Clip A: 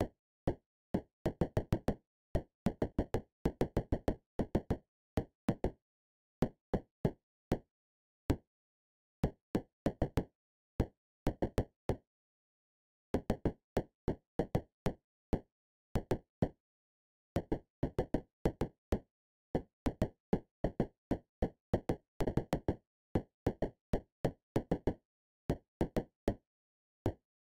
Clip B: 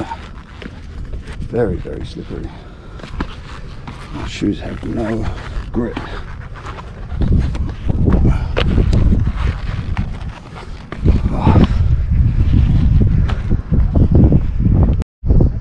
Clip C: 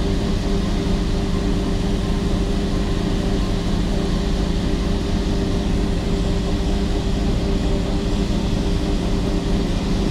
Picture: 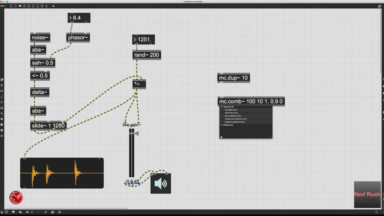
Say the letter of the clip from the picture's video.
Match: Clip A